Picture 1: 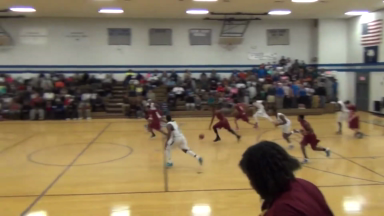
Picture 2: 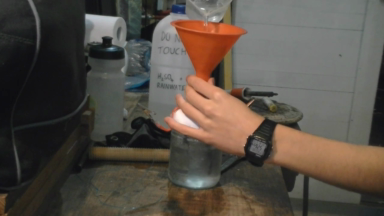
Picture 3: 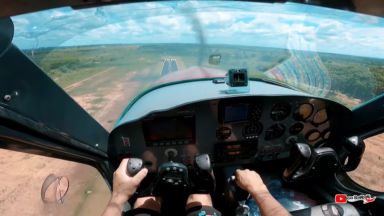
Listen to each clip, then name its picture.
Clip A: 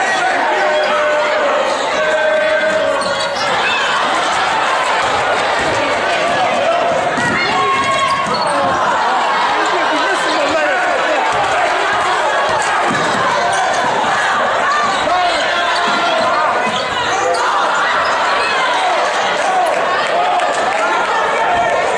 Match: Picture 1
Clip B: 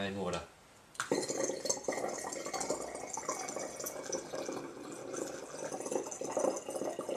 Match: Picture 2